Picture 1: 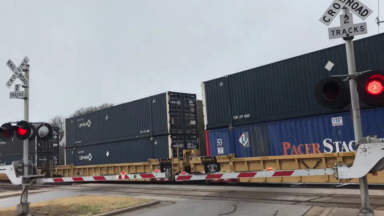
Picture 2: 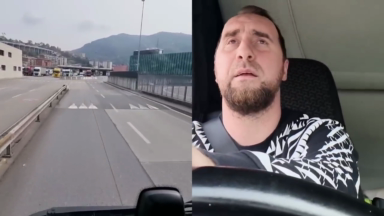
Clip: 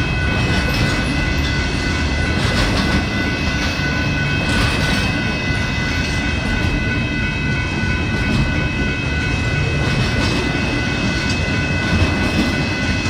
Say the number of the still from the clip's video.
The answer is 1